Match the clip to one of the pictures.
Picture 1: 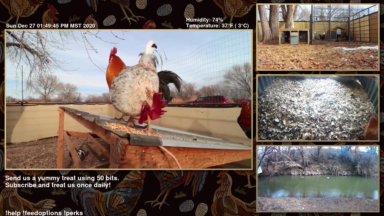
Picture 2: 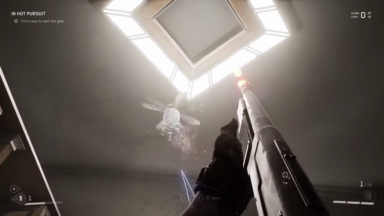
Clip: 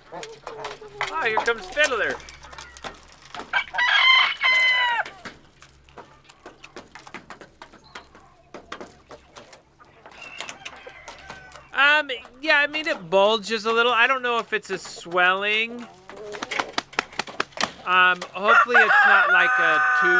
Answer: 1